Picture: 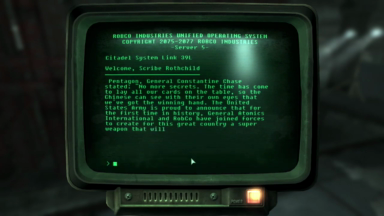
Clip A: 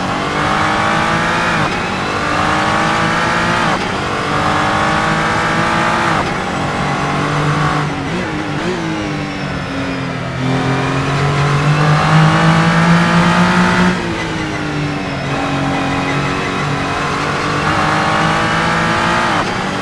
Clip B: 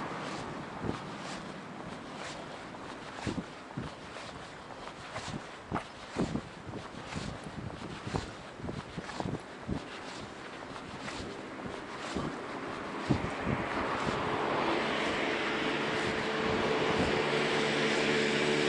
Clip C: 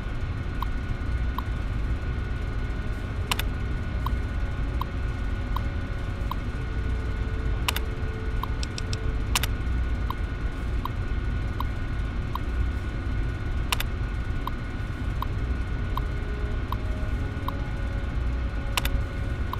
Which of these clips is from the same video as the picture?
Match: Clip C